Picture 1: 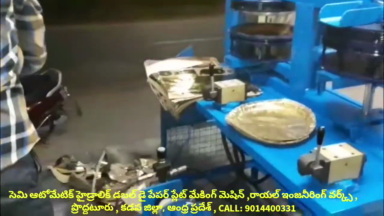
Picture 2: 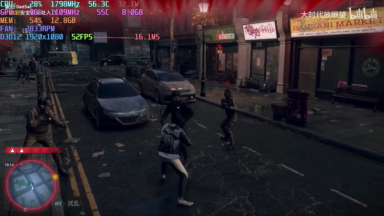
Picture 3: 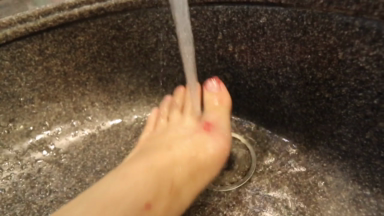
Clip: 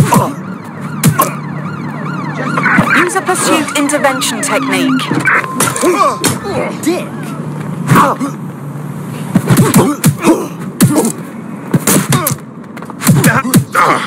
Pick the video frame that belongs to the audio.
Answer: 2